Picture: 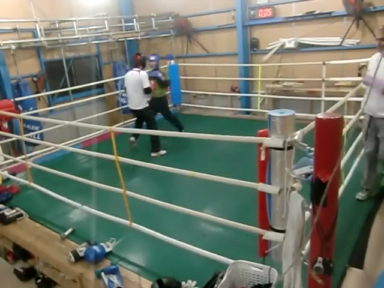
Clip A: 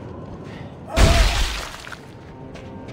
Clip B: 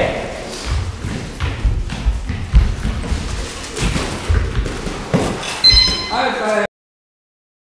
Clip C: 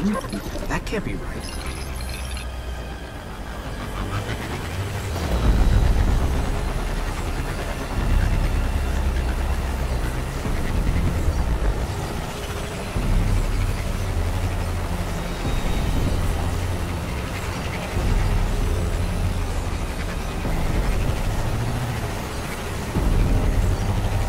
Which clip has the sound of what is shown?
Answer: B